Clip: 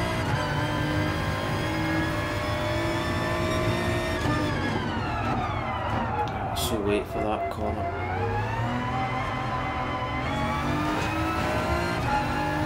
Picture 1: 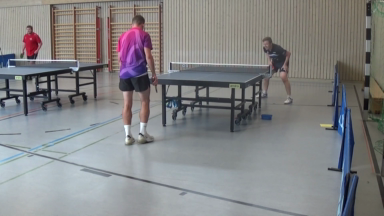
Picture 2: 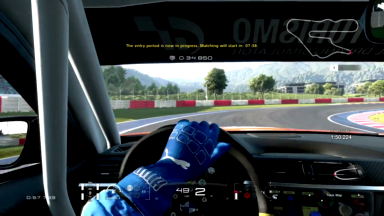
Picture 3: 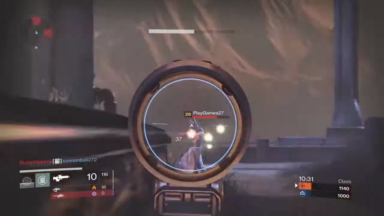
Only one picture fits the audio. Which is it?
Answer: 2